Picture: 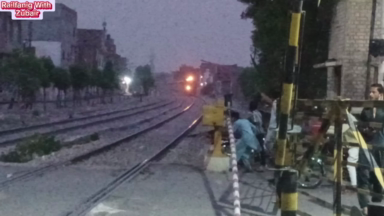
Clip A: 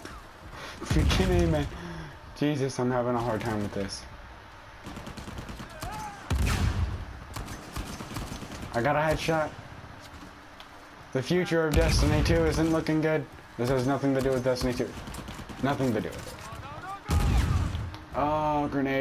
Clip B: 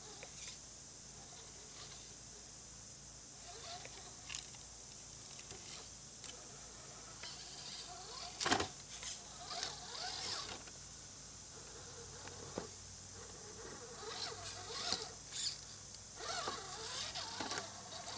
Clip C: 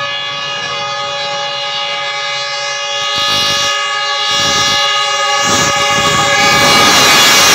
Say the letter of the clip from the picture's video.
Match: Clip C